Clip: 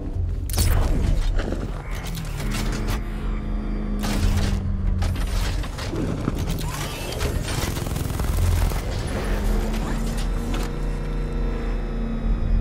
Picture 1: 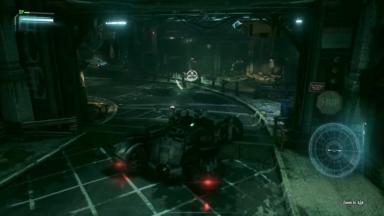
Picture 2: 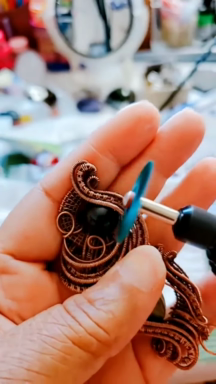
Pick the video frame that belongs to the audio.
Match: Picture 1